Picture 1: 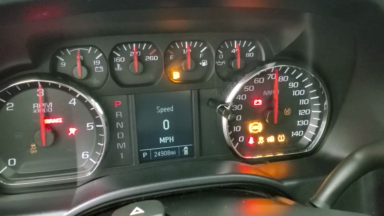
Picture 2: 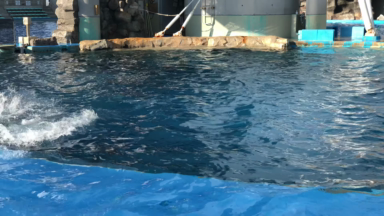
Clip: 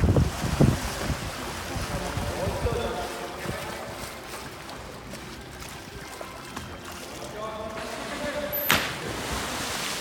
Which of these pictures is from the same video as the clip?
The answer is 2